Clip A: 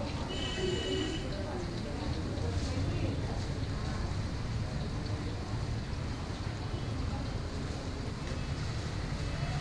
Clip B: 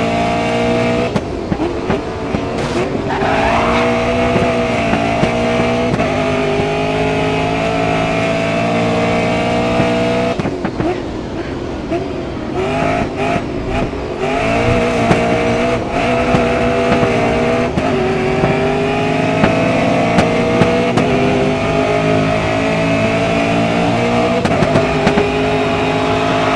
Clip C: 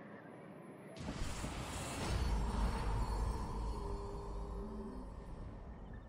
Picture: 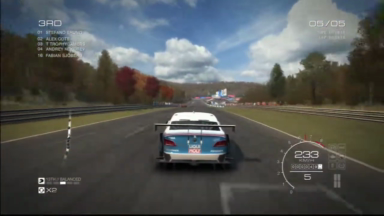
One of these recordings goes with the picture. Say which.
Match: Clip B